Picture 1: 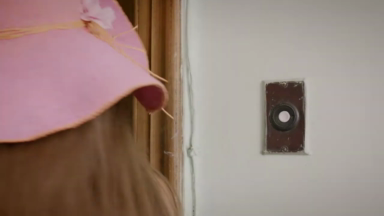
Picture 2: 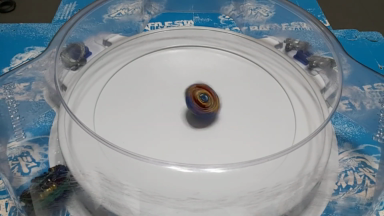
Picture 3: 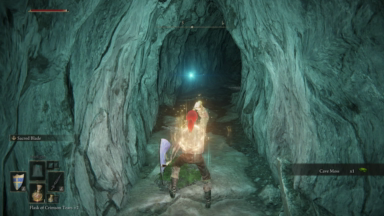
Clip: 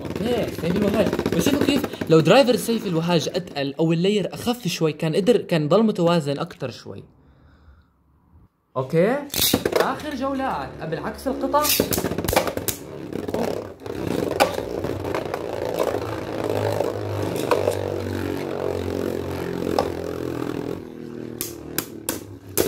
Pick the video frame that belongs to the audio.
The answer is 2